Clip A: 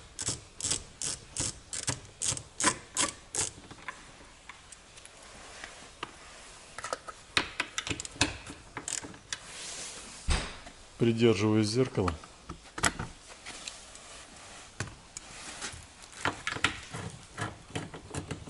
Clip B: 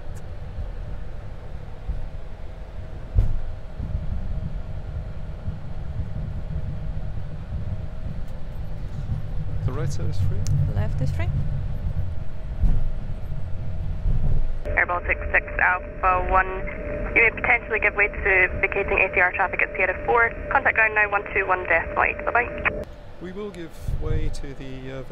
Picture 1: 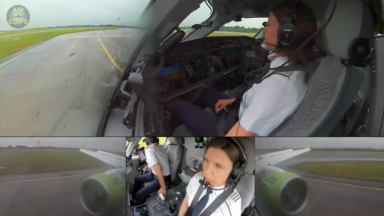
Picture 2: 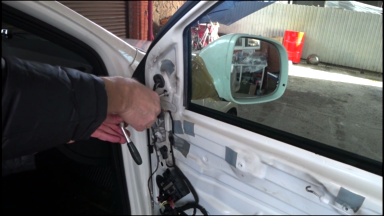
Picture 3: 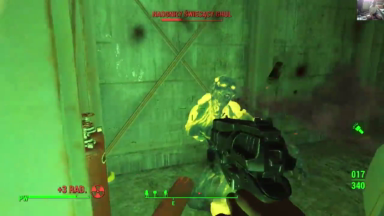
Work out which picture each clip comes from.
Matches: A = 2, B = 1